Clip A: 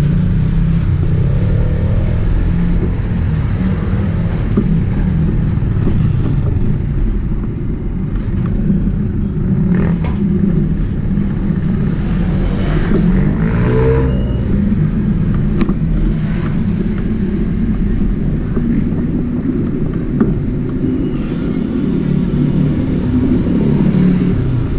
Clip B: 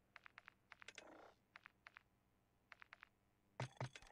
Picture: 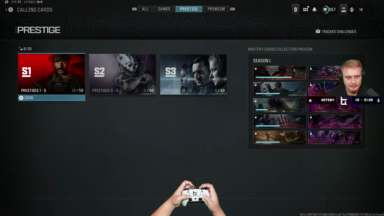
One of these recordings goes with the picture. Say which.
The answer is B